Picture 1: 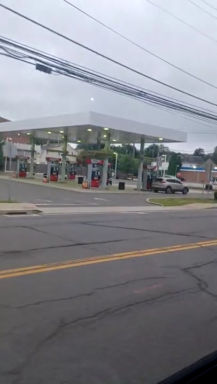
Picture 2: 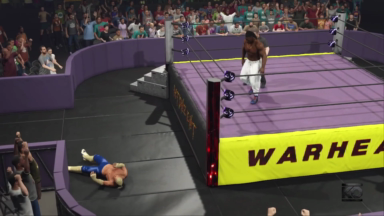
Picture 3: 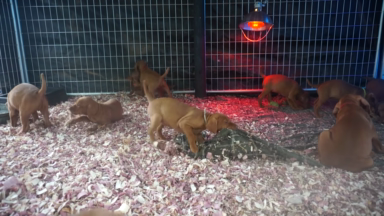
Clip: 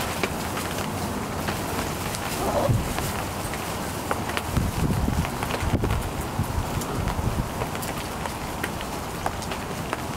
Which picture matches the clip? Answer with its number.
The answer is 3